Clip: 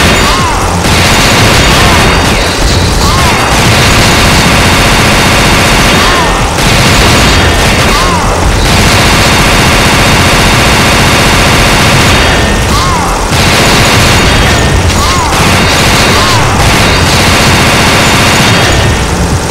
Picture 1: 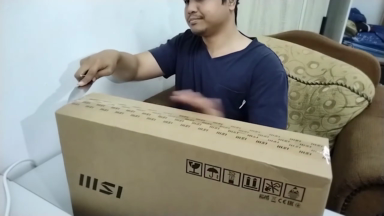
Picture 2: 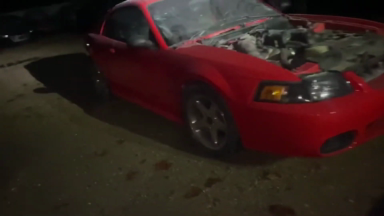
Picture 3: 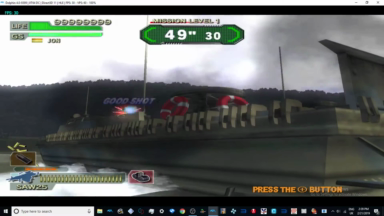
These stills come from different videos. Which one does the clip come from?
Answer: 3